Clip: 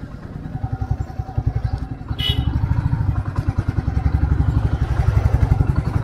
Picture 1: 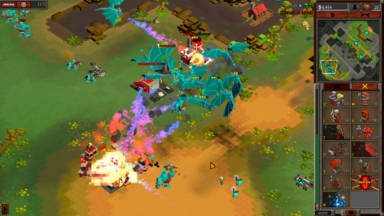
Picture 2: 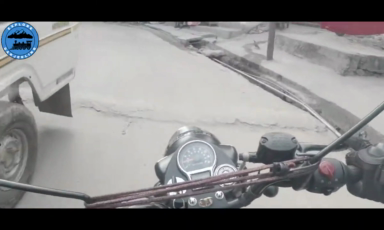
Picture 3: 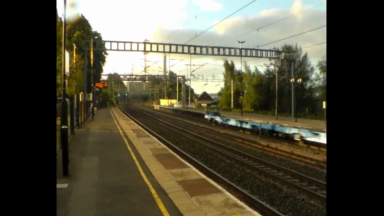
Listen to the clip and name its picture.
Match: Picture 2